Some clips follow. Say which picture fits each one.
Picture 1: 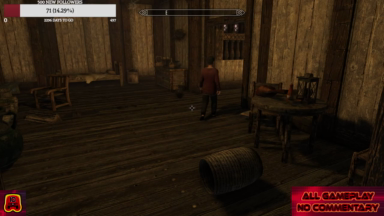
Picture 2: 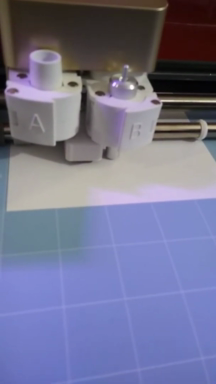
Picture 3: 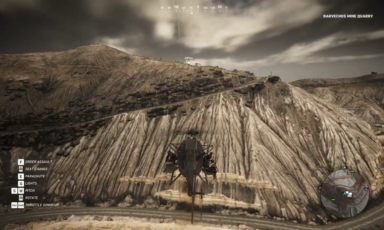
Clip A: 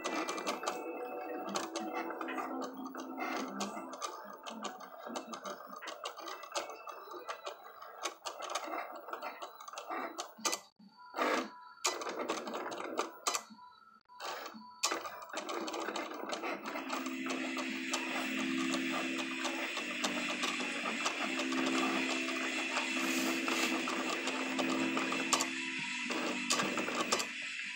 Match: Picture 2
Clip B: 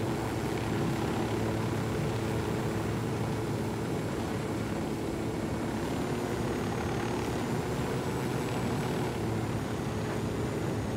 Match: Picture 3